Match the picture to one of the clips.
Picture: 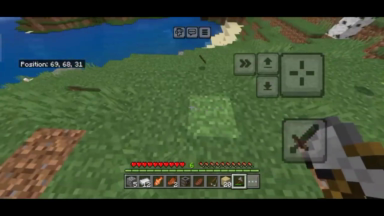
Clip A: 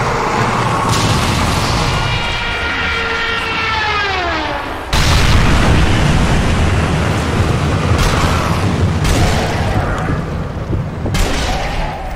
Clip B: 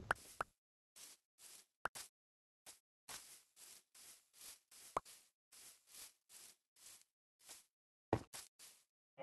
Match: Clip B